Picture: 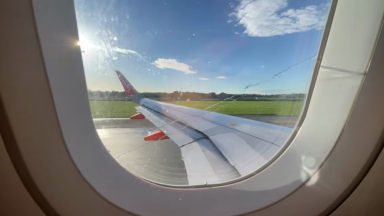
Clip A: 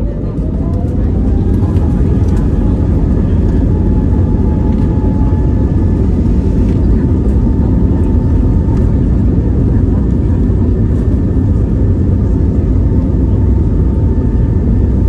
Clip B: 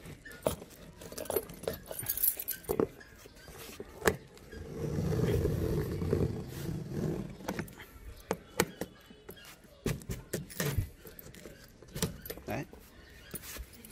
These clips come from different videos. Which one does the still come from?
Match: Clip A